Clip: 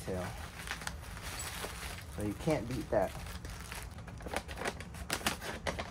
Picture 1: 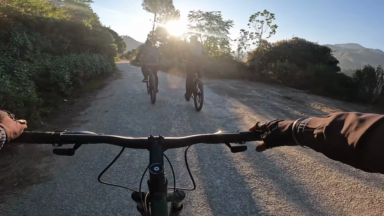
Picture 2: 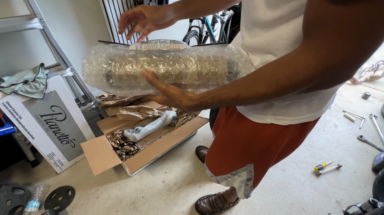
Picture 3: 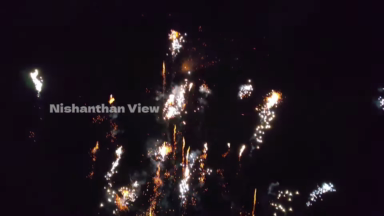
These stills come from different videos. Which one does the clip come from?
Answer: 2